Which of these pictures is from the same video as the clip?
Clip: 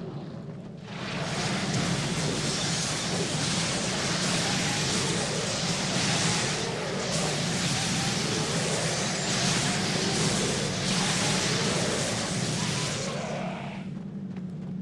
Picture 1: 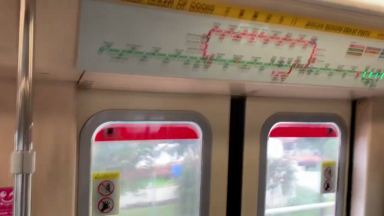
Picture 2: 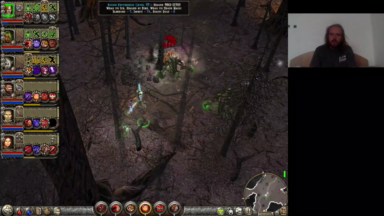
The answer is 2